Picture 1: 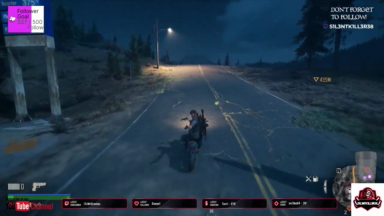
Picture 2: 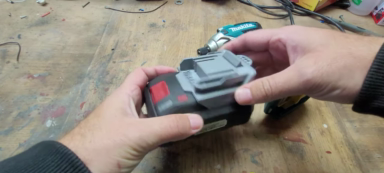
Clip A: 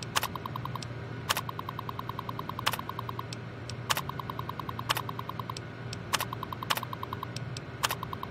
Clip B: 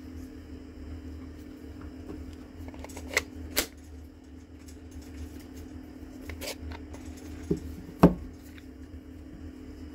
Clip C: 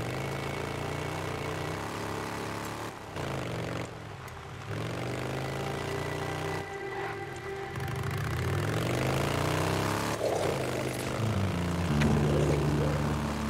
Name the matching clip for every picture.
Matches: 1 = C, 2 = B